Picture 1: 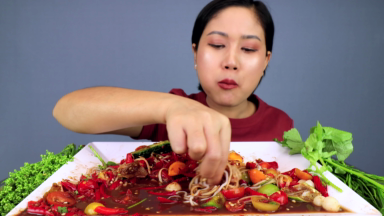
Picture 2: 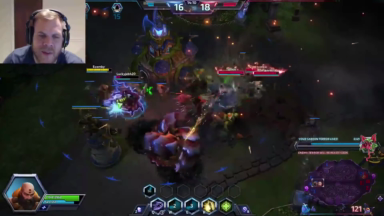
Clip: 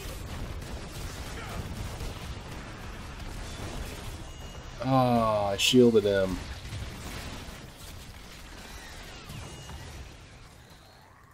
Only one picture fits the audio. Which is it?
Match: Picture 2